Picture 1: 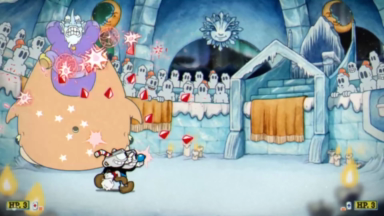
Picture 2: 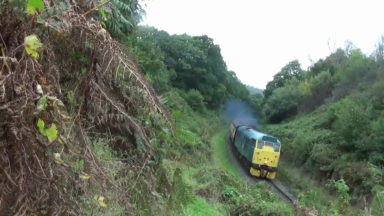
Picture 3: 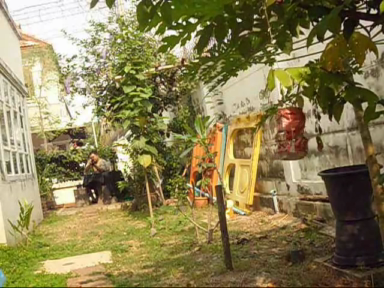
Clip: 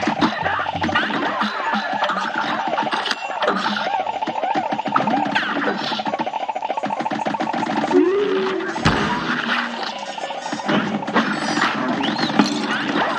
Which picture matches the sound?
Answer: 1